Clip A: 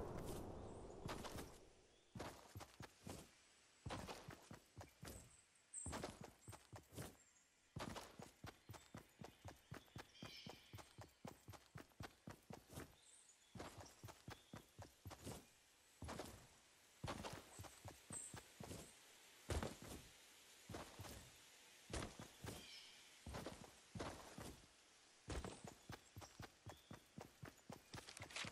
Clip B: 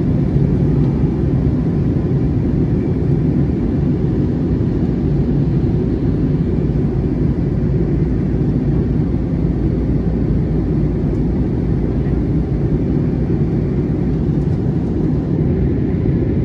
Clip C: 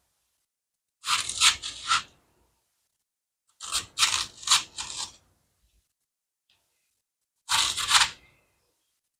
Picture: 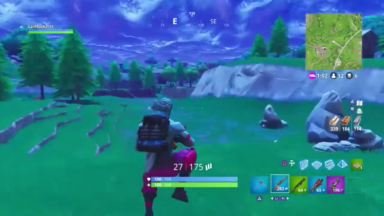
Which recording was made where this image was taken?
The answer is A